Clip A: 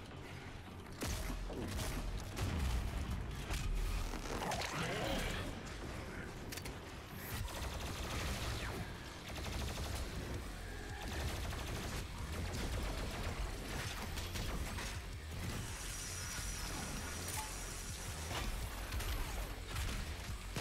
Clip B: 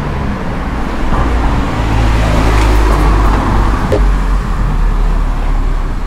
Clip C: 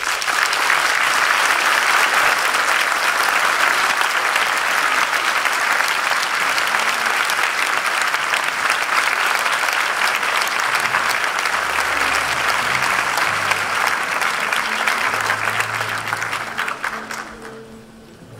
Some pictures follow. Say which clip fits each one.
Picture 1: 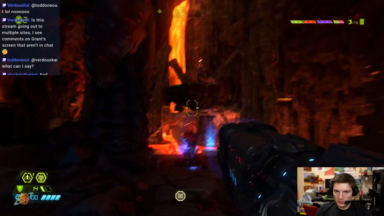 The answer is A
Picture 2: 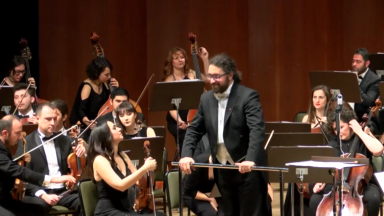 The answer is C